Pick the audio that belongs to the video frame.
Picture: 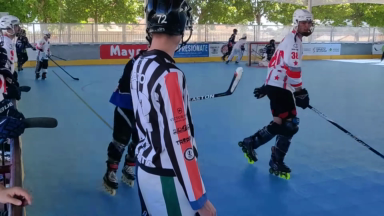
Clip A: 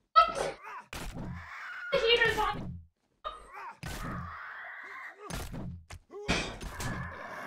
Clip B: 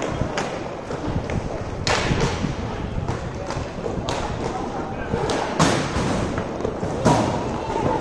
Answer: B